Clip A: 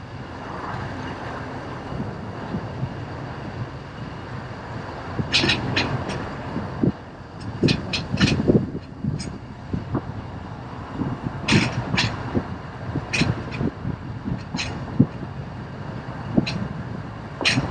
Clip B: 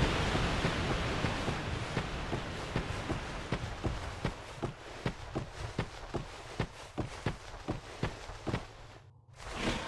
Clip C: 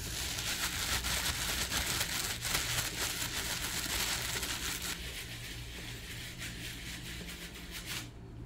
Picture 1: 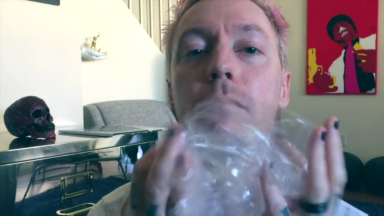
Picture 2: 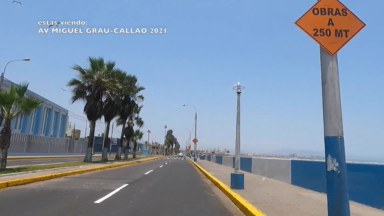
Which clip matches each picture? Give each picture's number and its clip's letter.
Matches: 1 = C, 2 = A